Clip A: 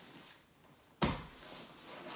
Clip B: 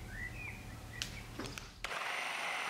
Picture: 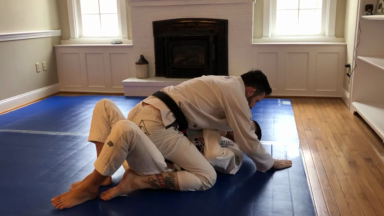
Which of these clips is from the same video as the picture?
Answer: A